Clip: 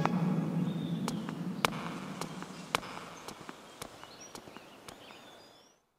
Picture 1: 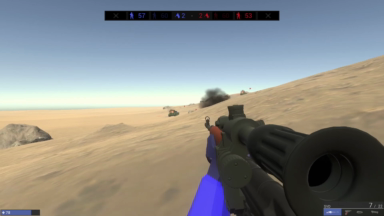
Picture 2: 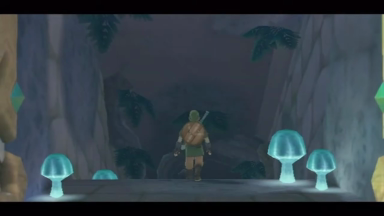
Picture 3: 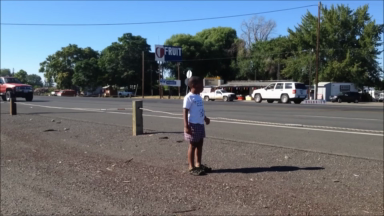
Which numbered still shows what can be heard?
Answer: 2